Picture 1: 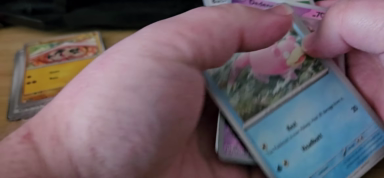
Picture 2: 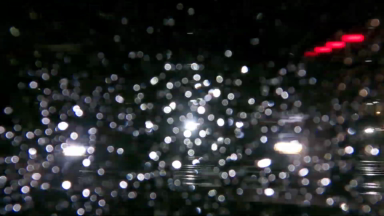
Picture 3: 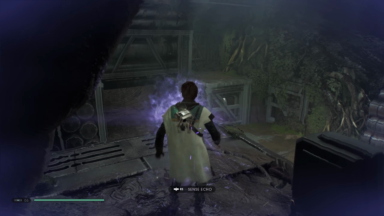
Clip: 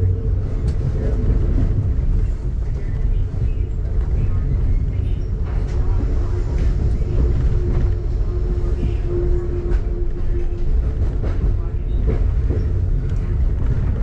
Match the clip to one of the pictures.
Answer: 2